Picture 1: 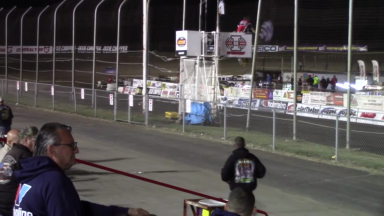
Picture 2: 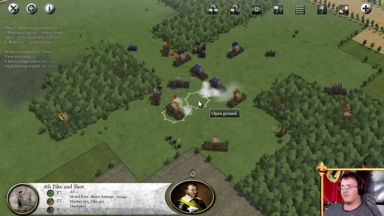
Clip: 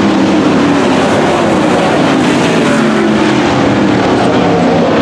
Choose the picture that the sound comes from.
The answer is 1